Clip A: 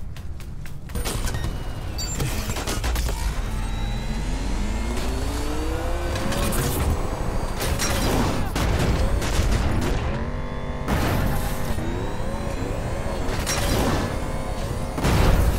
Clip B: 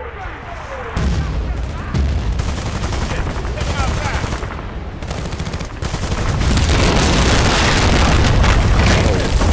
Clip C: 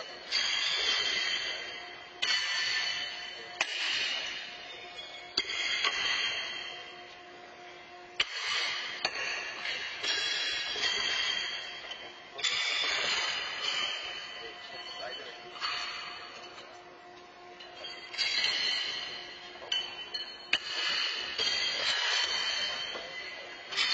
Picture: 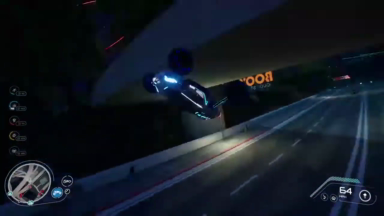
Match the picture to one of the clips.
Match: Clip A